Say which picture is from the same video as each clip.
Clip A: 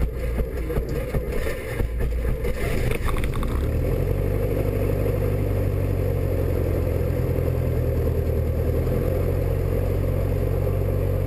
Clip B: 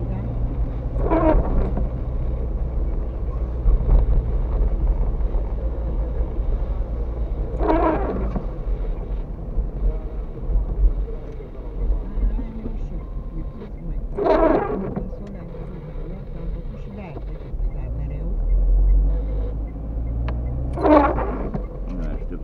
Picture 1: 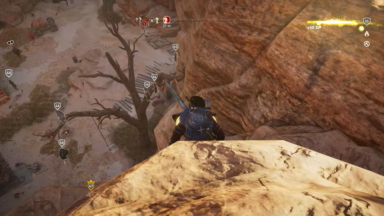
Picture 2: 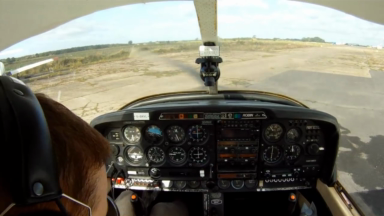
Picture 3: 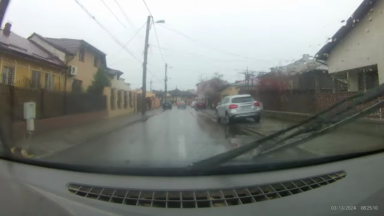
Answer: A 2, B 3